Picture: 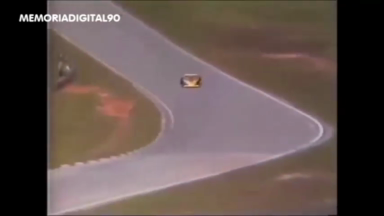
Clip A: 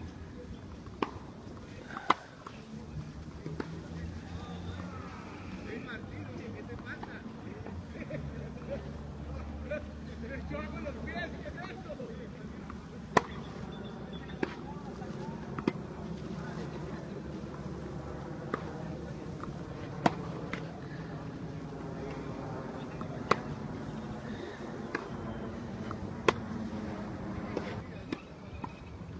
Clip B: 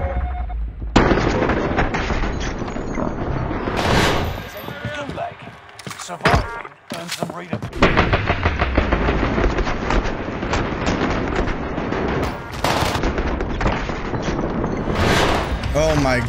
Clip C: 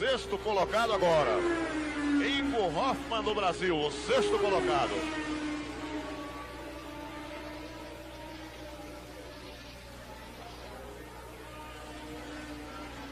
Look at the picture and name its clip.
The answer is C